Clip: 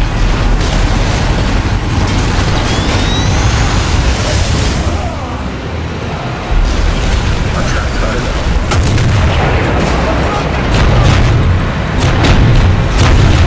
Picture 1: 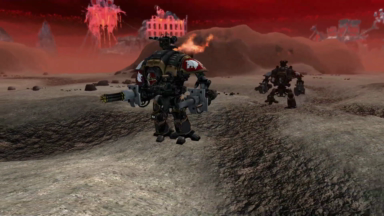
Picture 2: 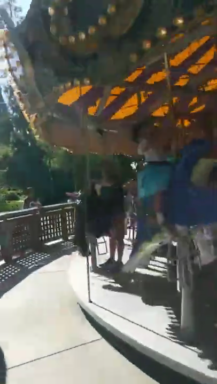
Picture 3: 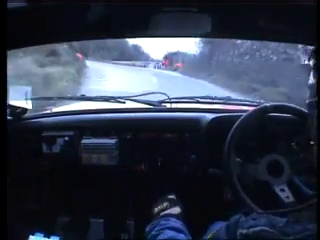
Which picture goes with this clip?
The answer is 1